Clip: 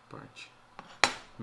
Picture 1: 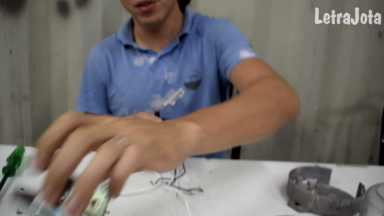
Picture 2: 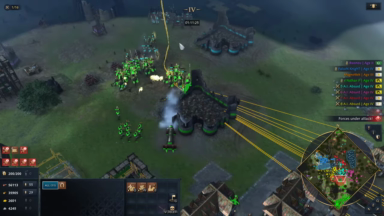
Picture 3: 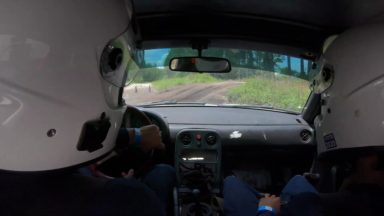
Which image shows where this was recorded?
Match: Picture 1